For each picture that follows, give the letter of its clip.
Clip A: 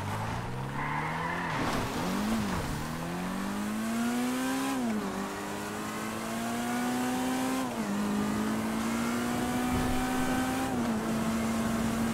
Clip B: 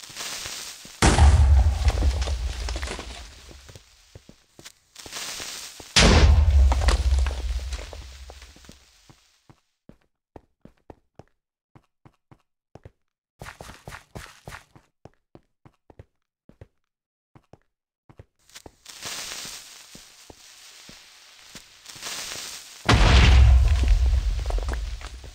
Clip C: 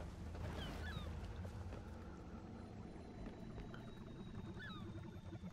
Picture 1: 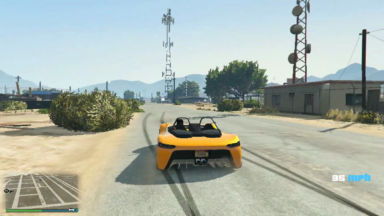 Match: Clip A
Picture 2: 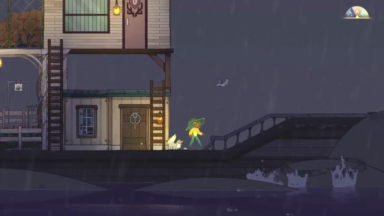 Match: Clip C